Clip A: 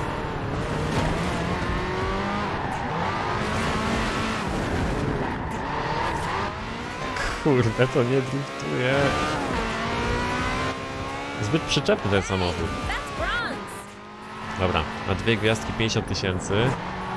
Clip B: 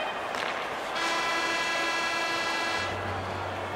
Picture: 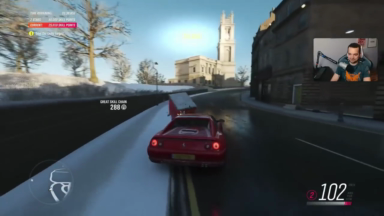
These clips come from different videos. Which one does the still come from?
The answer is A